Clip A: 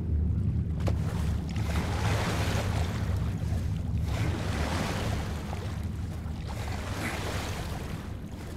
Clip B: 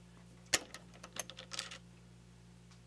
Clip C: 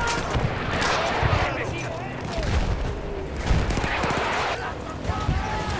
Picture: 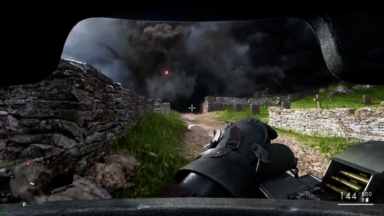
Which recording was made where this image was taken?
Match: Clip C